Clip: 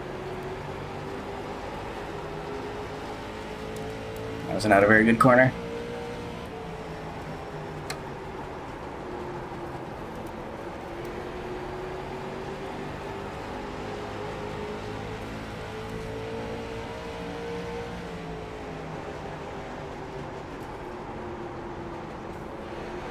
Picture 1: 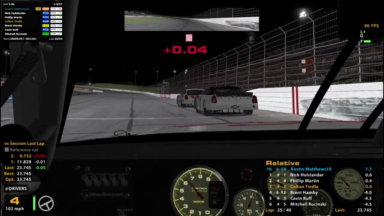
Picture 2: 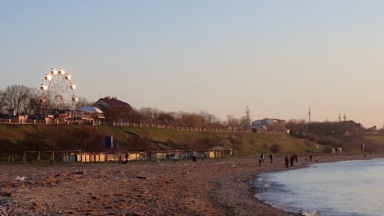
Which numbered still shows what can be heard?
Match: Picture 1